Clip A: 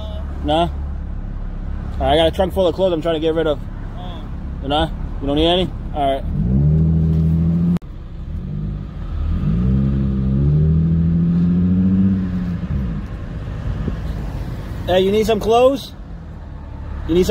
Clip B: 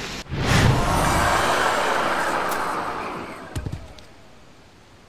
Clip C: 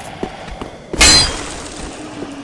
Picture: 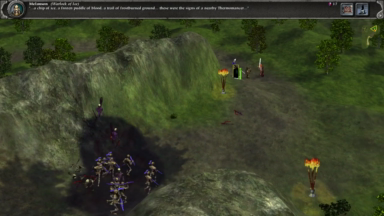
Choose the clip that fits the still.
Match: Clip B